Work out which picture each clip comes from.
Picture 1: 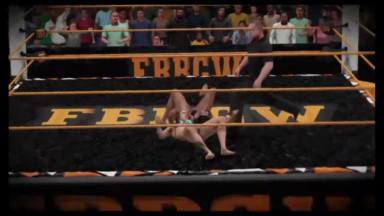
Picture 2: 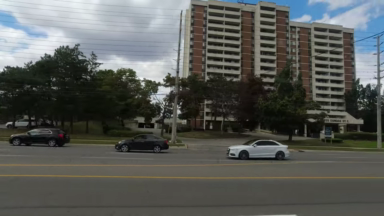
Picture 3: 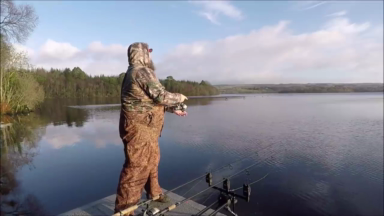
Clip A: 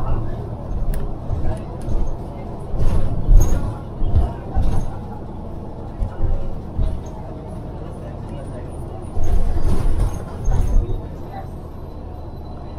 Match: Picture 2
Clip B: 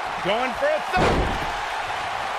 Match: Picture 1